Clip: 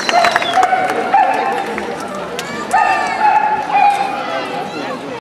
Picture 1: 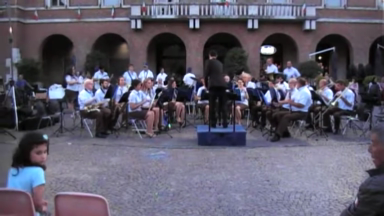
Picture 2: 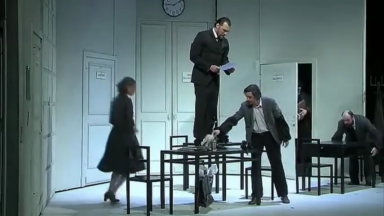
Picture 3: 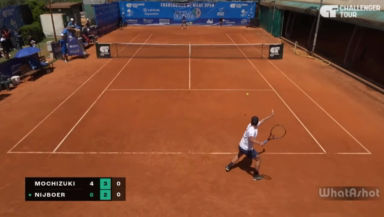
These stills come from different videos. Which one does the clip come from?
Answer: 1